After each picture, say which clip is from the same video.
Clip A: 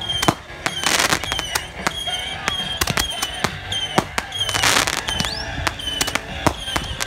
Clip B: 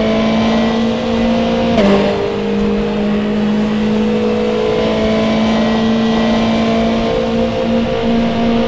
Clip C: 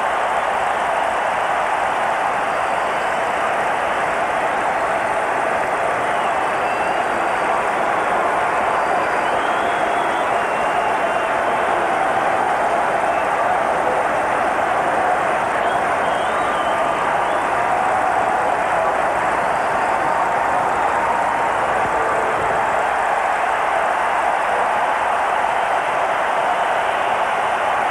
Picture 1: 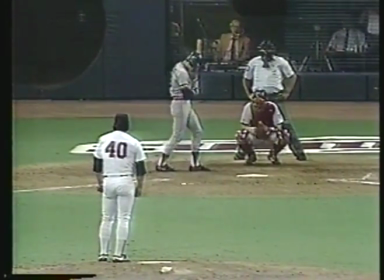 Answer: C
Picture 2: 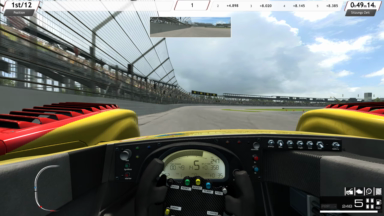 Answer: B